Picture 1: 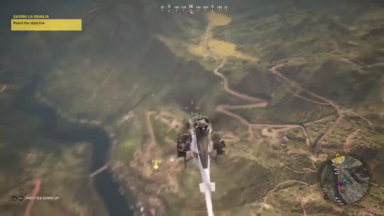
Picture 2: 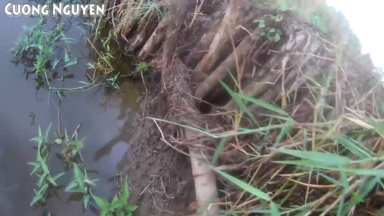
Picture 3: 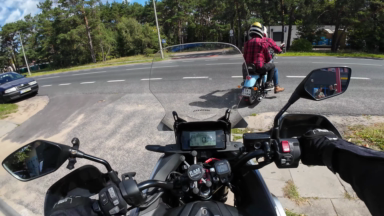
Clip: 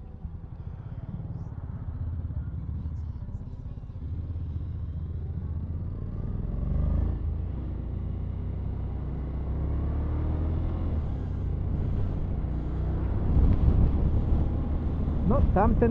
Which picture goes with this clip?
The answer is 3